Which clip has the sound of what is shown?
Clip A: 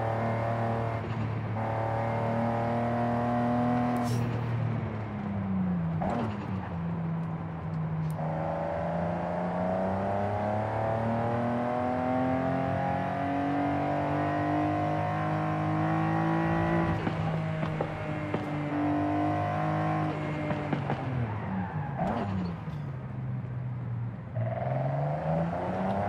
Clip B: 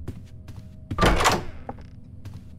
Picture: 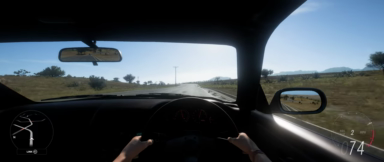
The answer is A